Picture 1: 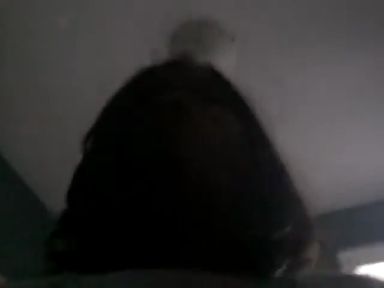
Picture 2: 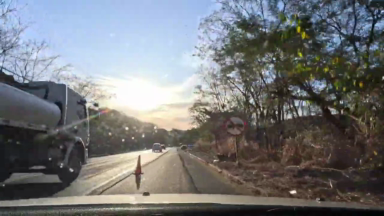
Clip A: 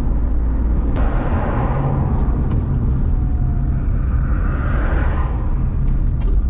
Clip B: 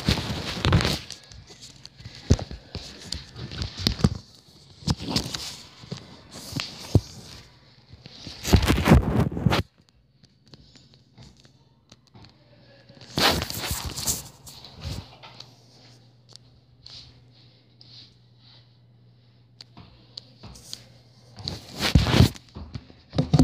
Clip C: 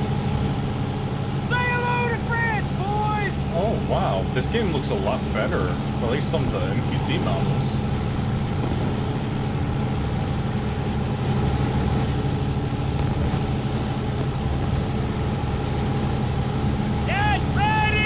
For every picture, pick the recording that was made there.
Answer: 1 B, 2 A